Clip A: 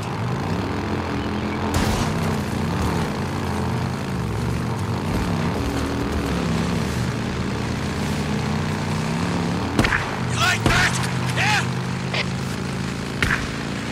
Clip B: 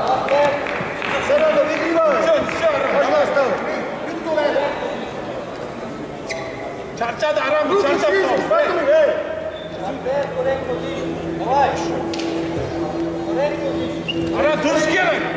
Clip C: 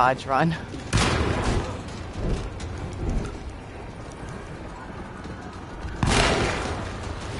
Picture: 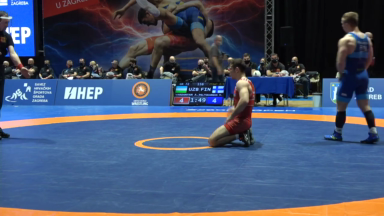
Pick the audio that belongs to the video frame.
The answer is B